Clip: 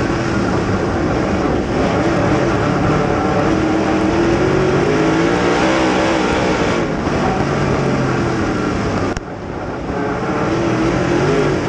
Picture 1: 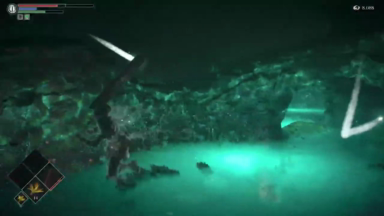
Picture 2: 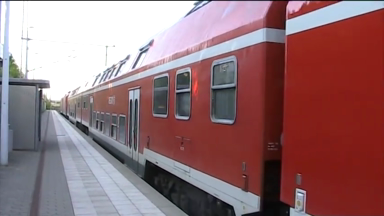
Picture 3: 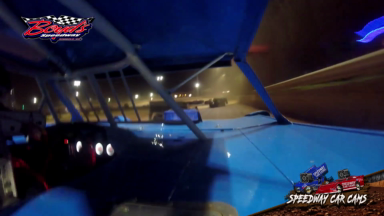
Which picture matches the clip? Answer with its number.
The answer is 3